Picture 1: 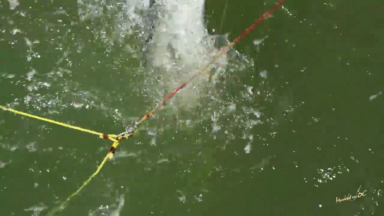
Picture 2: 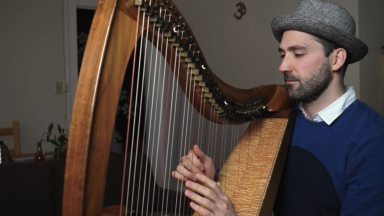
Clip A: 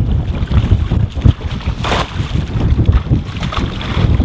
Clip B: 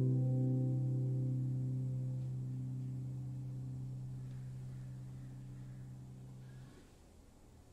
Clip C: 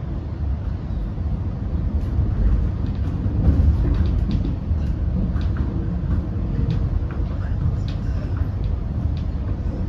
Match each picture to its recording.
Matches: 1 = A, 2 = B